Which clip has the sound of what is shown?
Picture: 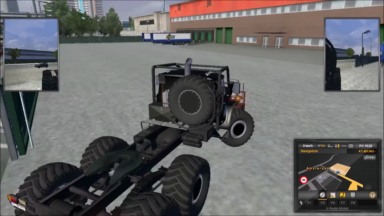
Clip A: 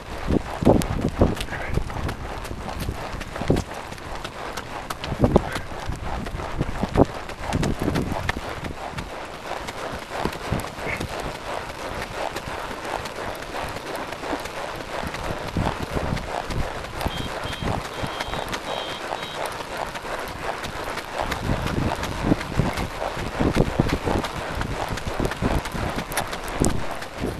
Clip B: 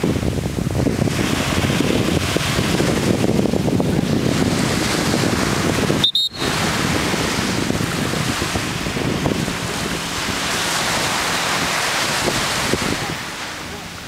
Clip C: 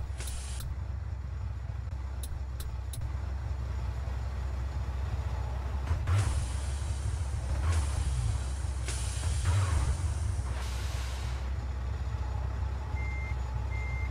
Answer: C